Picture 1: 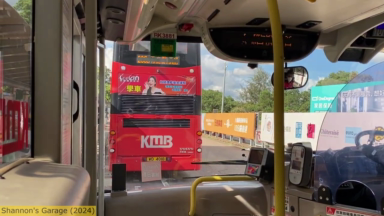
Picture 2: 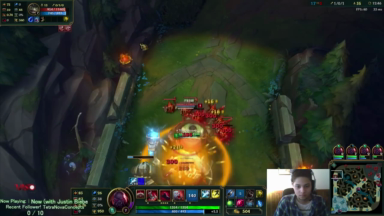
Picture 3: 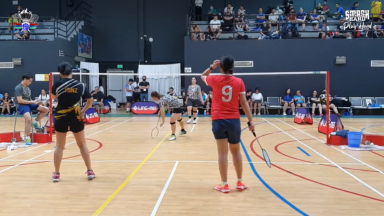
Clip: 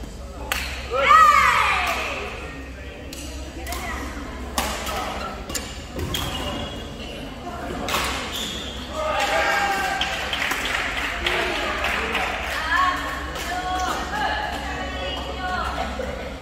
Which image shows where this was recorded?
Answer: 3